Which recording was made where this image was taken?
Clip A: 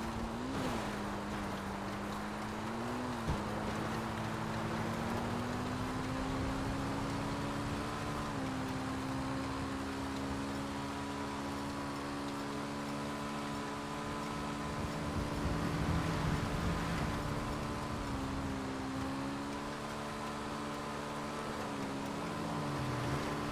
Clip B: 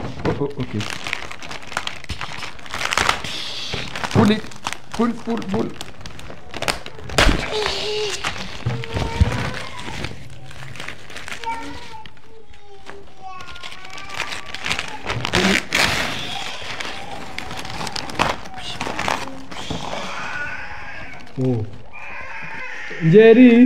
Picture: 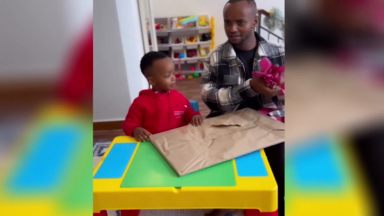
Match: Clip B